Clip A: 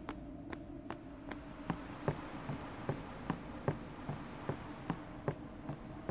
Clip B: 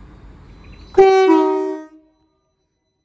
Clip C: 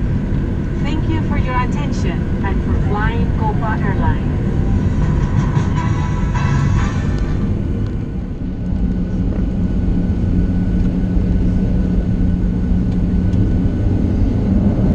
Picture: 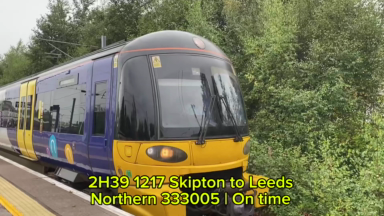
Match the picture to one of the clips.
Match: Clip B